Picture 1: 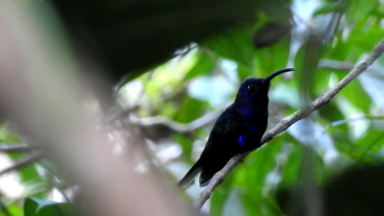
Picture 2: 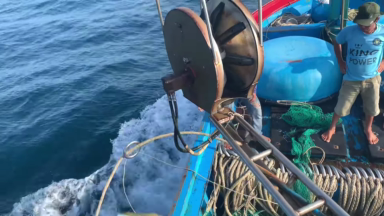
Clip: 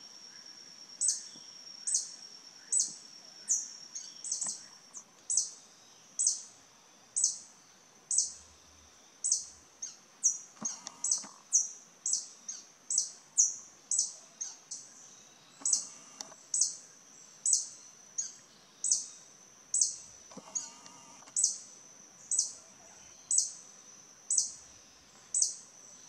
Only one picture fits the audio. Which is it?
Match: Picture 1